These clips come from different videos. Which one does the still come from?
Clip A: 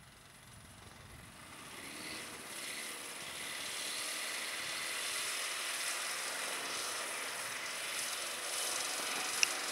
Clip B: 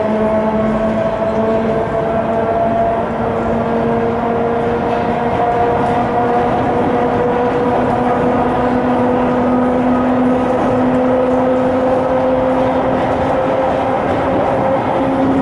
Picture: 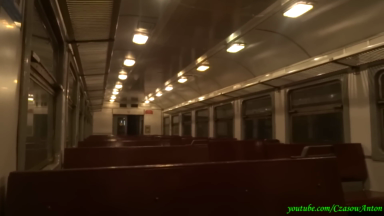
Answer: B